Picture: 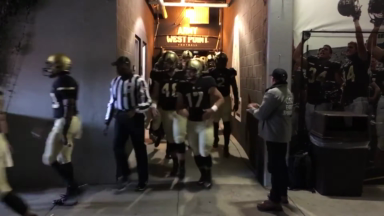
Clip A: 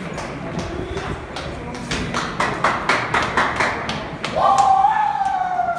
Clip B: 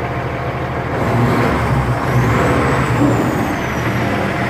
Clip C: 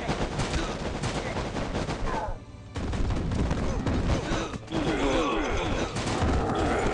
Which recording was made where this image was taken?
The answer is A